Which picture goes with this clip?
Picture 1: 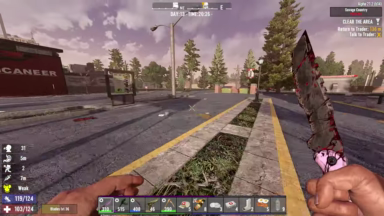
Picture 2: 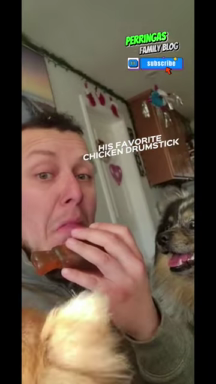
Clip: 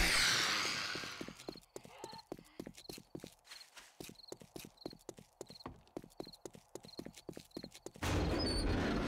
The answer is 1